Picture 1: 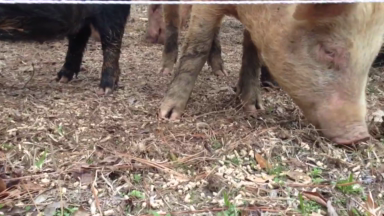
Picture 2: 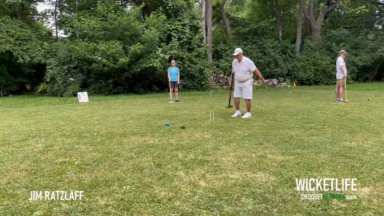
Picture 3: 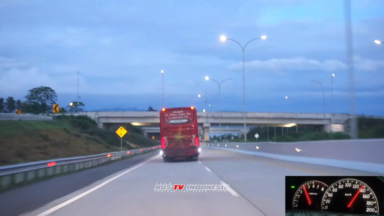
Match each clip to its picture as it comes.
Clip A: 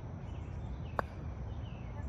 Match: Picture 2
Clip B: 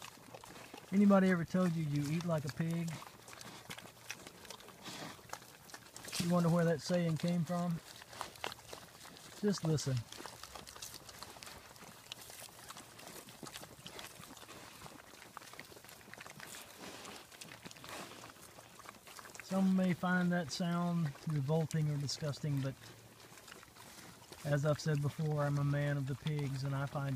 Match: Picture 1